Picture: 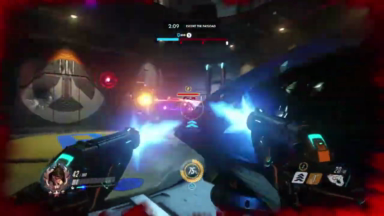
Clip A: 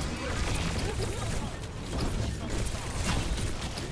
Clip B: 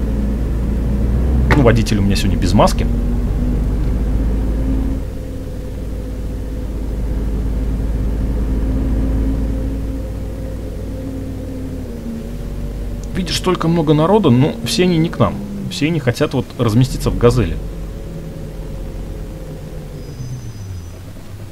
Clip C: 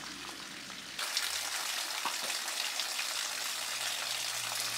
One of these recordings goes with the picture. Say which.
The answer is A